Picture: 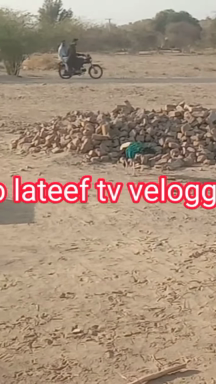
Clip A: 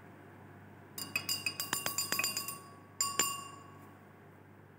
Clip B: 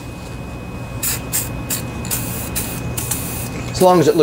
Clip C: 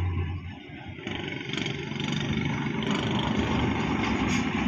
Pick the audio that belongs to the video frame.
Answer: C